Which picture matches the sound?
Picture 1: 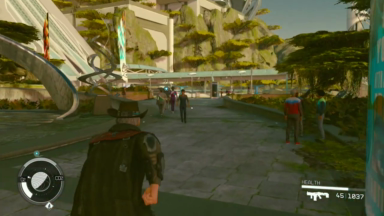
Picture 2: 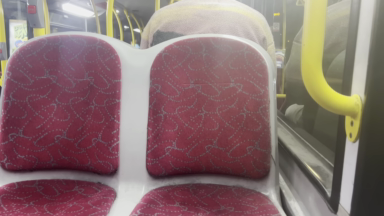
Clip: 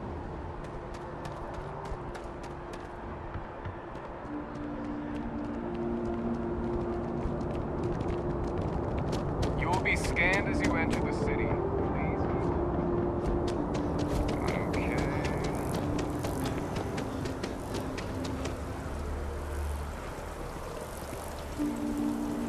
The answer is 1